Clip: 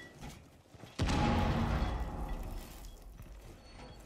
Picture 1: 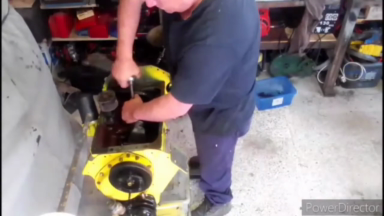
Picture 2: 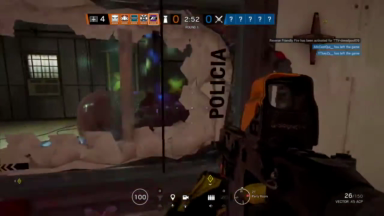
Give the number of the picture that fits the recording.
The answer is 2